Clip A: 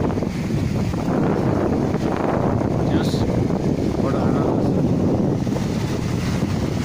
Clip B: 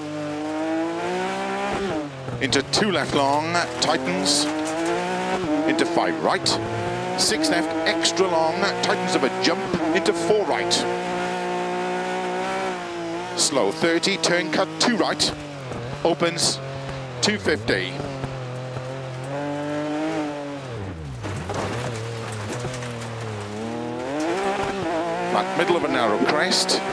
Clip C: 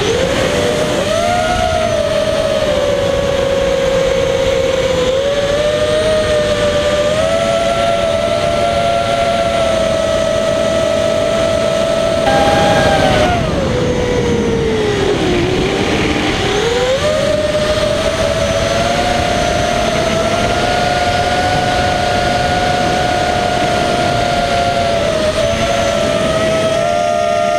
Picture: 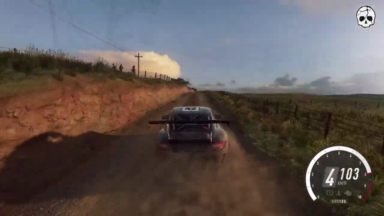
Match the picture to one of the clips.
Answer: B